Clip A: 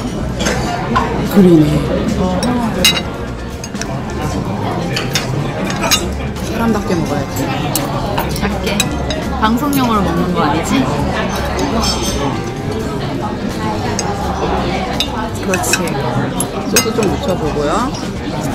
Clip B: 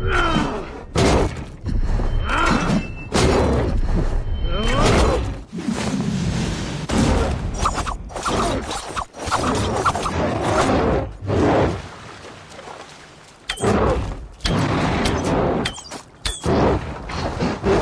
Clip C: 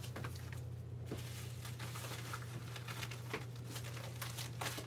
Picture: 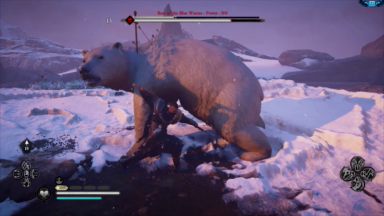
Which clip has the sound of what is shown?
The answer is B